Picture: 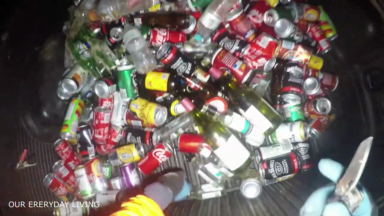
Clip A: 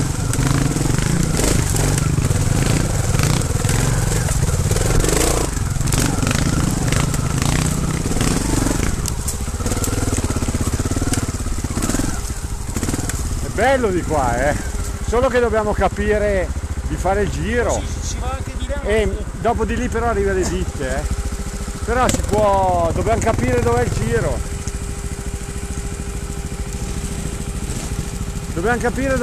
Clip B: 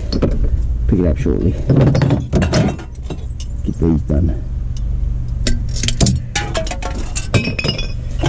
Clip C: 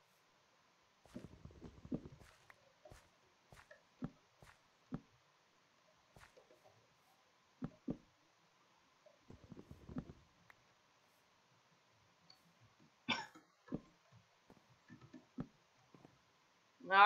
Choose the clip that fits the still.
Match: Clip B